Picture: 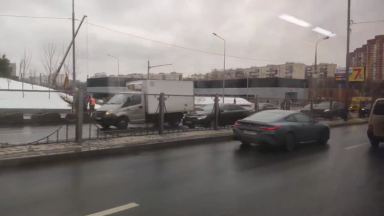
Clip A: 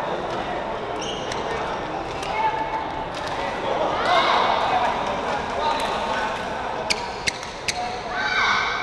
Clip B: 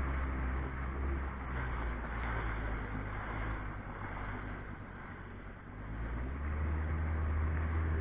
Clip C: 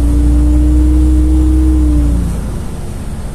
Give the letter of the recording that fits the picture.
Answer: C